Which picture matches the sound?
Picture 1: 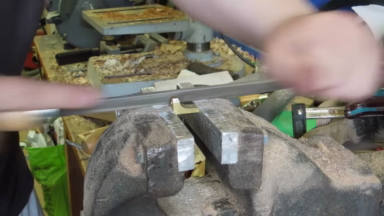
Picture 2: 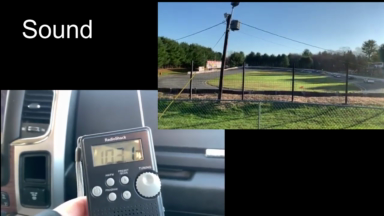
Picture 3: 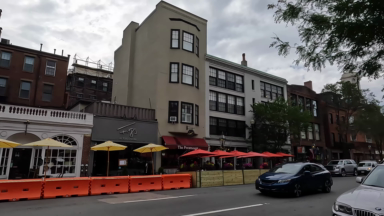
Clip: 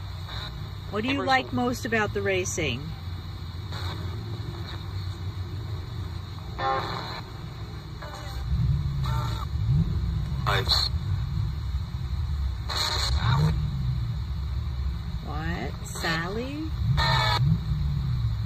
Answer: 2